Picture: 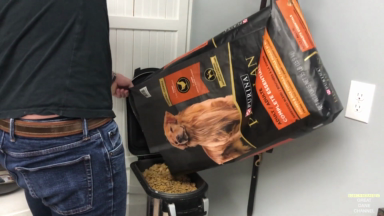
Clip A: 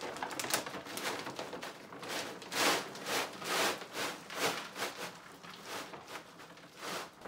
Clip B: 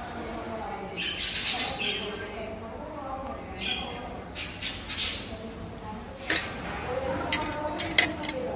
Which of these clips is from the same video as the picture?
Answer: A